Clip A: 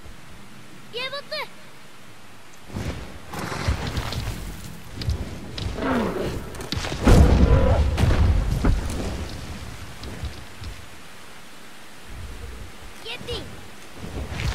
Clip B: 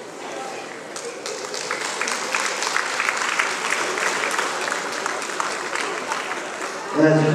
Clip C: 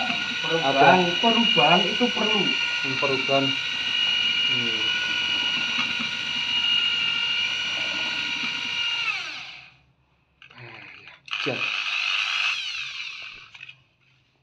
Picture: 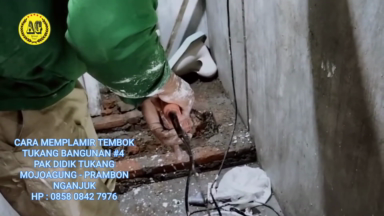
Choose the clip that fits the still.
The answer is C